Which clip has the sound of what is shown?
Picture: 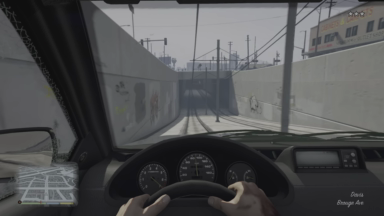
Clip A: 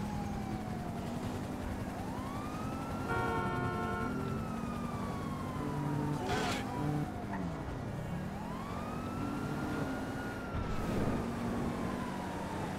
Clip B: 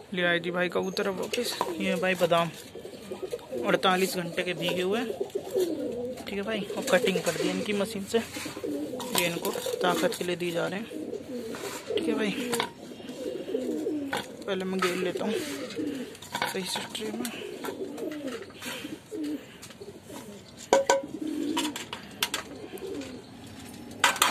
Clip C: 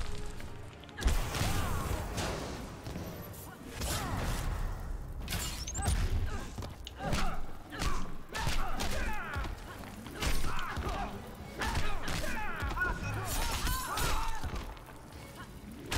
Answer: A